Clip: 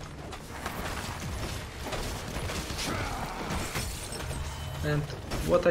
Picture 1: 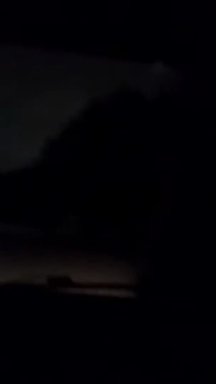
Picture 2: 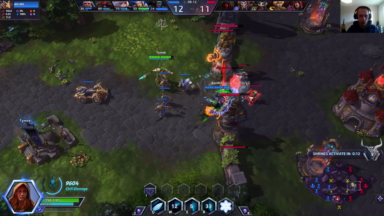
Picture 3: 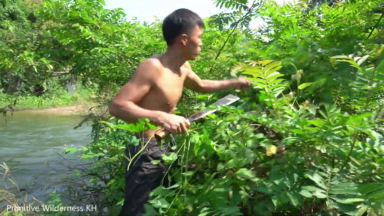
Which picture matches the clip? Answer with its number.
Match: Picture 2